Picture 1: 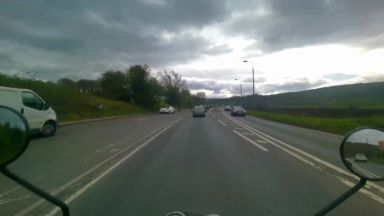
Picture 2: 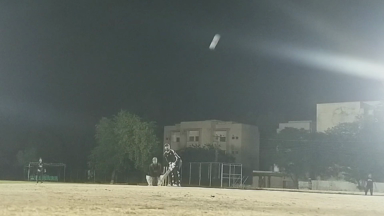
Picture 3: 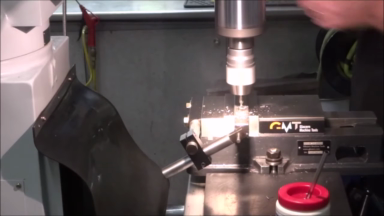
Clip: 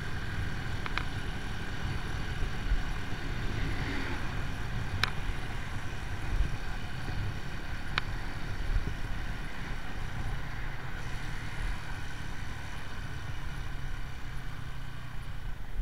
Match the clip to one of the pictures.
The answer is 1